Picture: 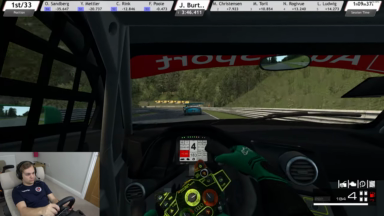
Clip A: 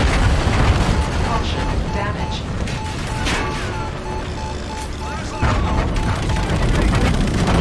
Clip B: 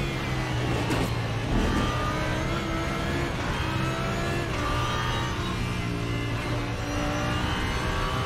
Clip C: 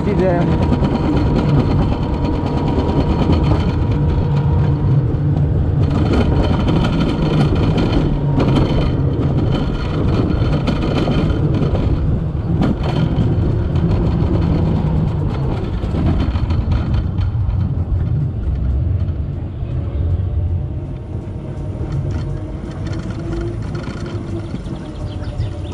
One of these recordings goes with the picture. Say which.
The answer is B